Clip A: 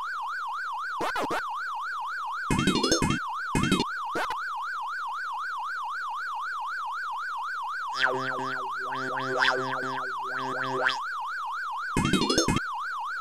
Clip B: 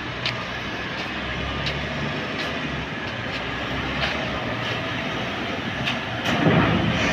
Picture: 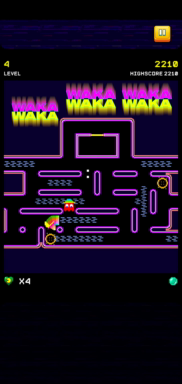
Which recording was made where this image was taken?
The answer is A